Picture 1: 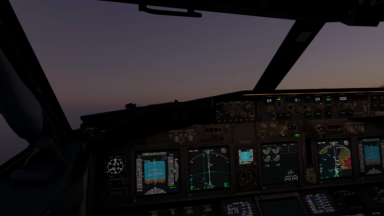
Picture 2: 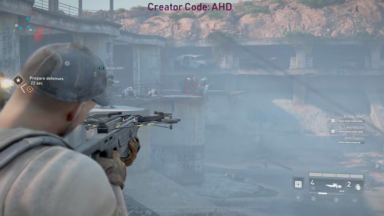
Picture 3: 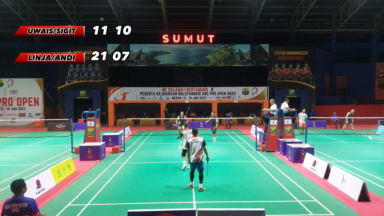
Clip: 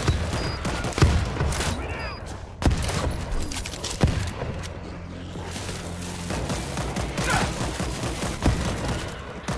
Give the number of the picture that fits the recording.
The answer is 2